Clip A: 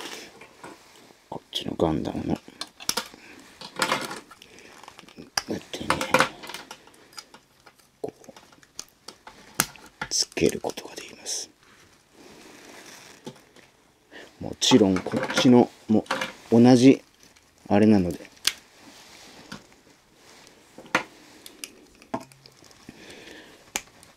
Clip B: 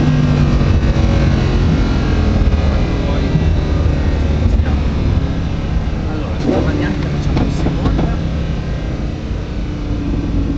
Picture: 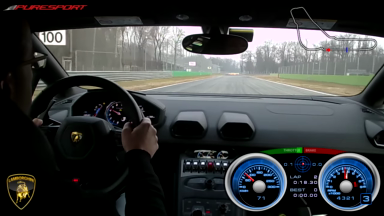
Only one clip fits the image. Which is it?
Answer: B